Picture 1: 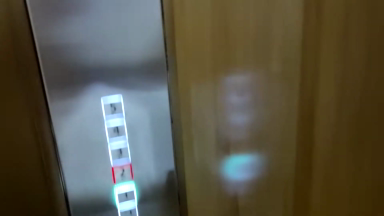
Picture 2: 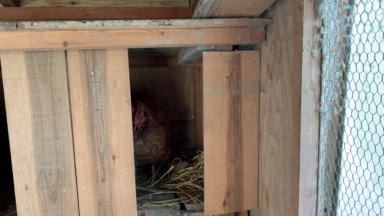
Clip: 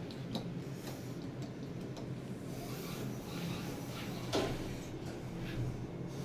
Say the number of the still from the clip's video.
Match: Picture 1